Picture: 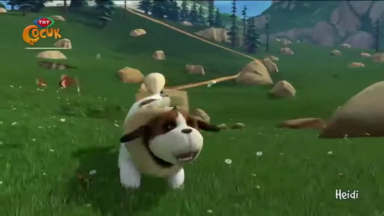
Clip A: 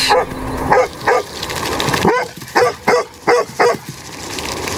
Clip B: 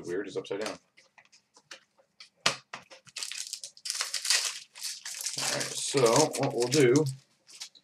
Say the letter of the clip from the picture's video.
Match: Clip A